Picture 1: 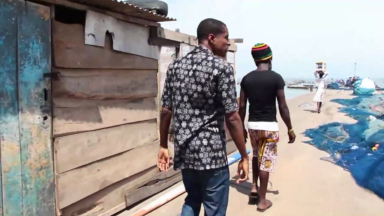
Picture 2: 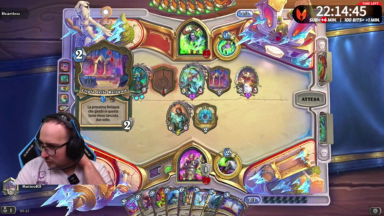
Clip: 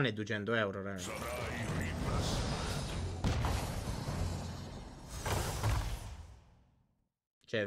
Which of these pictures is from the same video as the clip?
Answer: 2